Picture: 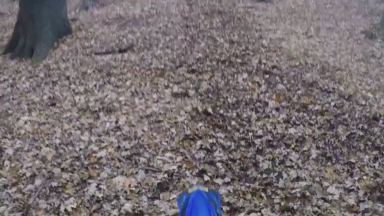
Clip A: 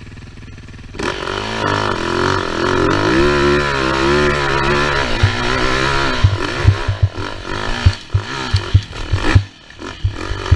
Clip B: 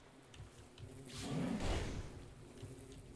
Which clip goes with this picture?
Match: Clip A